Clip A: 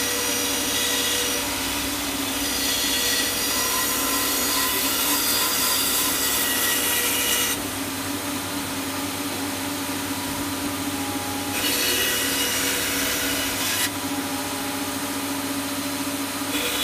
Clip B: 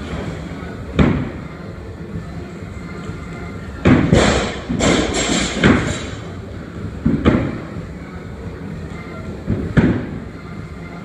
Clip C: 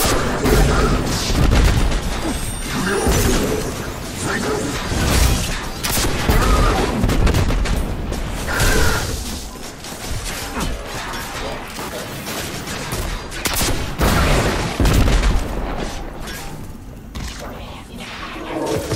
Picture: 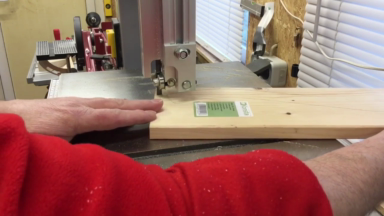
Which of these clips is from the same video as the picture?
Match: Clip A